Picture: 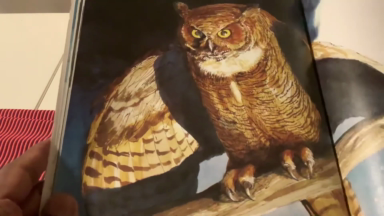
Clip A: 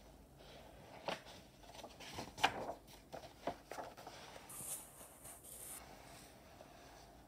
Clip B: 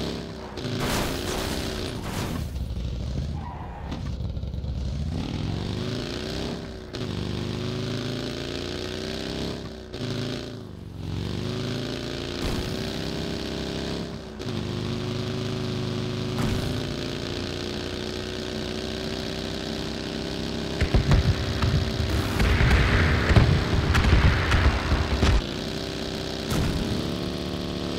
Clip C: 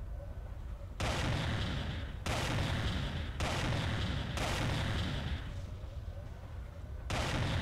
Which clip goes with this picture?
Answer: A